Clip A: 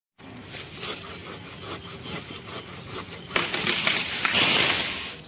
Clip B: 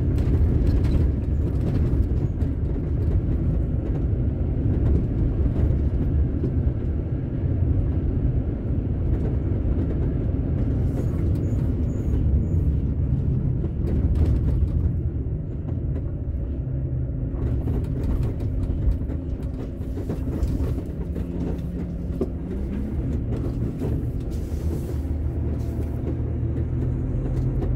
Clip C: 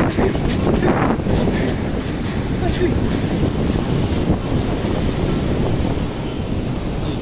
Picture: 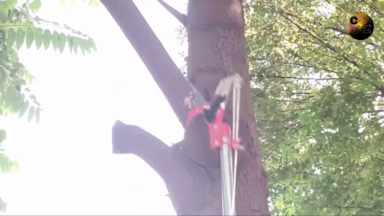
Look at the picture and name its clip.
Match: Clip A